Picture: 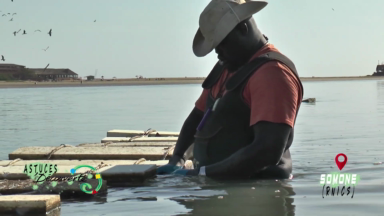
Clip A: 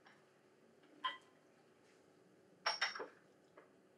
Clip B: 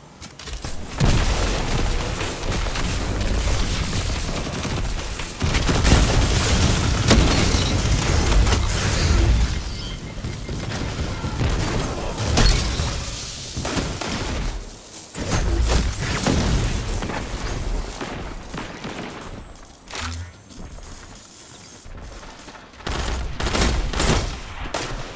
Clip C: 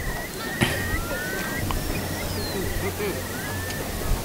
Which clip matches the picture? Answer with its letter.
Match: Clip C